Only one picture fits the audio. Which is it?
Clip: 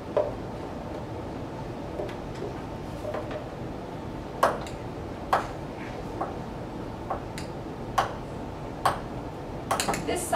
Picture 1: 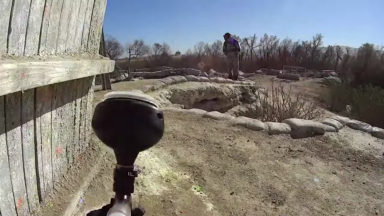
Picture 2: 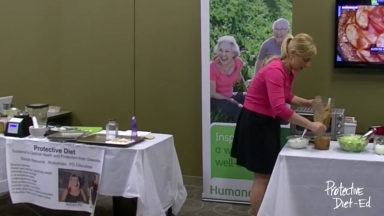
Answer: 2